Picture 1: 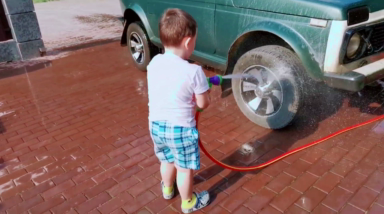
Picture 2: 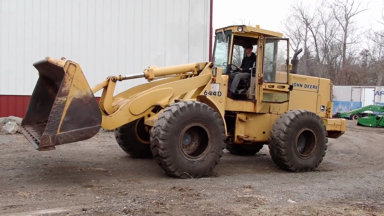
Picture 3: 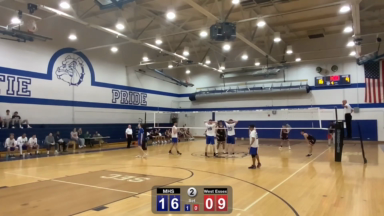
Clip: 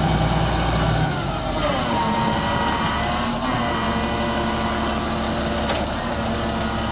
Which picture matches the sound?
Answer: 2